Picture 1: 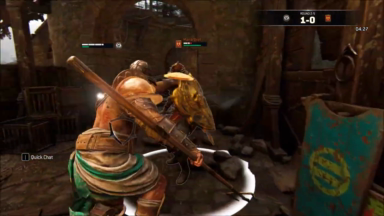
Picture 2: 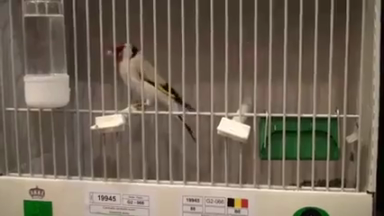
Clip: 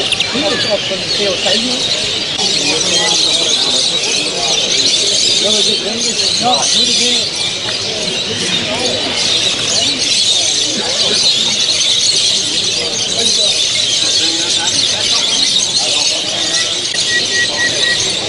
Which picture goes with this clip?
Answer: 2